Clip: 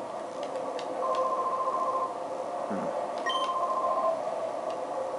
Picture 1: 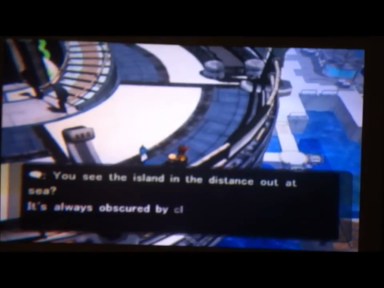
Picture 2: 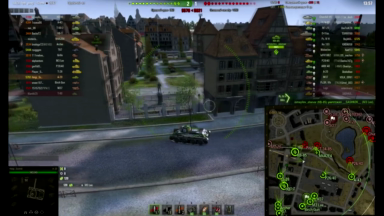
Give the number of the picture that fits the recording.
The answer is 1